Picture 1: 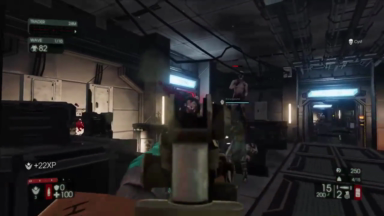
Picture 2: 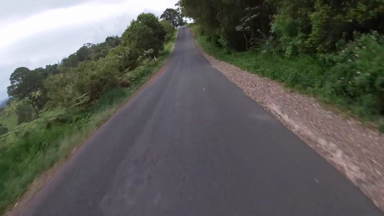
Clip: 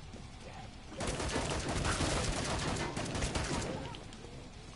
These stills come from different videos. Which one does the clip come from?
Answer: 1